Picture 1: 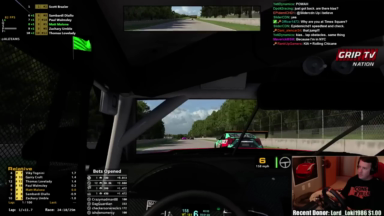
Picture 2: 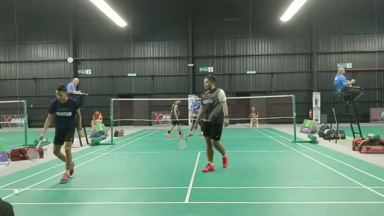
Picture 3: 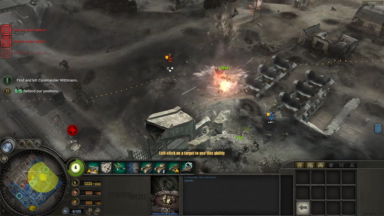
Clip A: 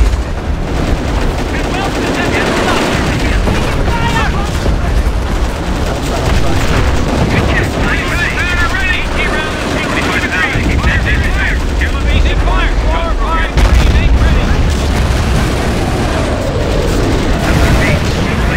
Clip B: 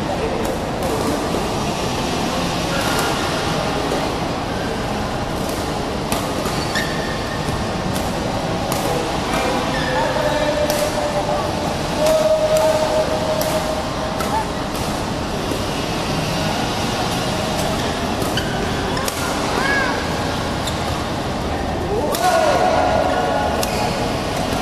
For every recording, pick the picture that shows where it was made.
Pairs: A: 3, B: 2